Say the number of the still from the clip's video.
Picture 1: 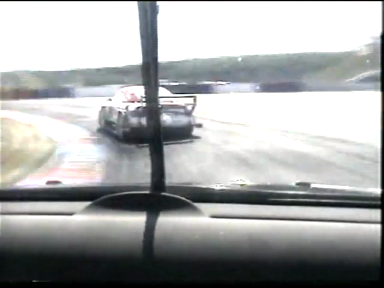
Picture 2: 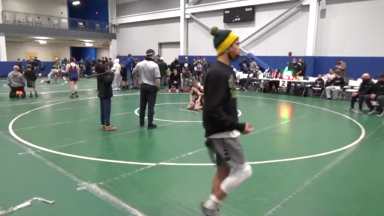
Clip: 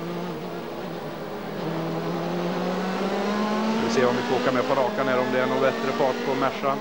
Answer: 1